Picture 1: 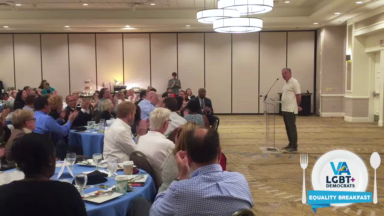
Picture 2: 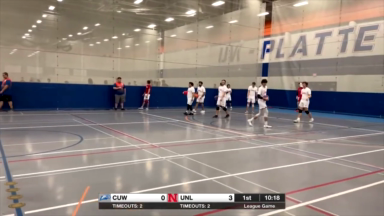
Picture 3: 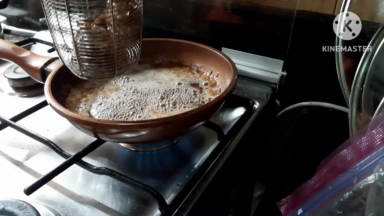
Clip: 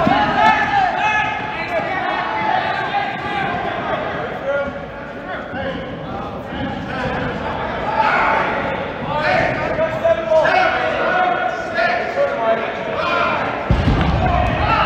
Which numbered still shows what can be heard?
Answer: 2